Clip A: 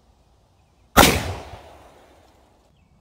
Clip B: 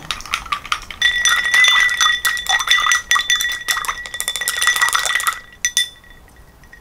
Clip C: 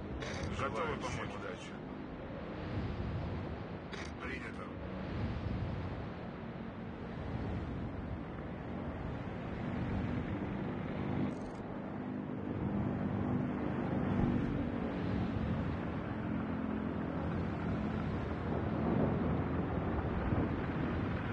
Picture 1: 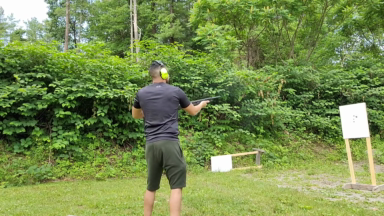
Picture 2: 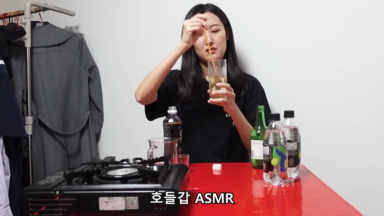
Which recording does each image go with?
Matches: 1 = A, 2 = B